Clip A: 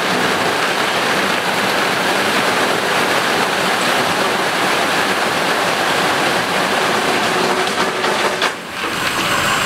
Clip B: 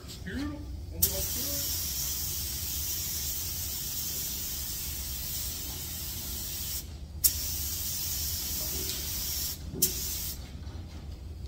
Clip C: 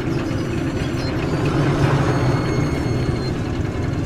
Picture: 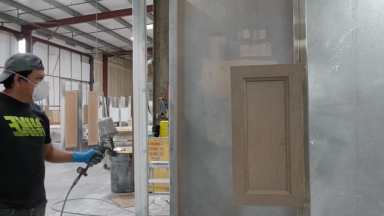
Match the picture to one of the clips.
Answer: B